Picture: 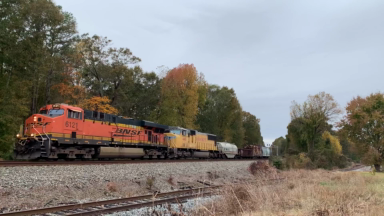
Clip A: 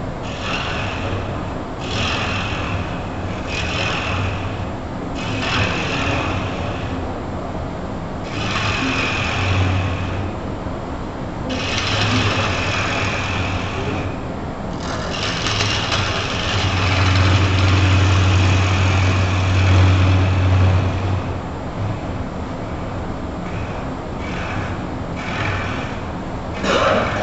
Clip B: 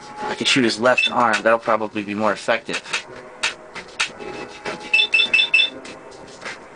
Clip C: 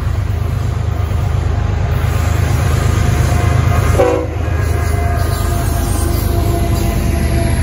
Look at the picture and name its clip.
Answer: C